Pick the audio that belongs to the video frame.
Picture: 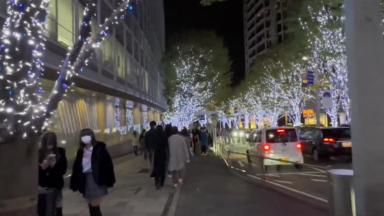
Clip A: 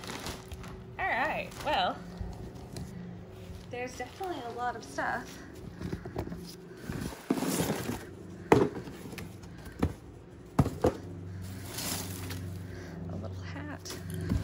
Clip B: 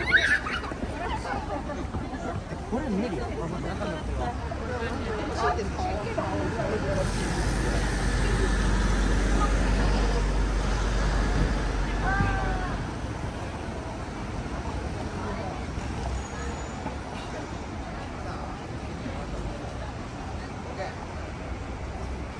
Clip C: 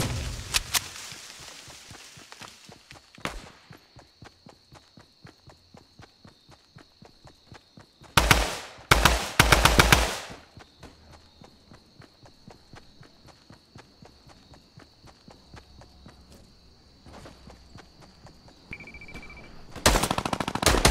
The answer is B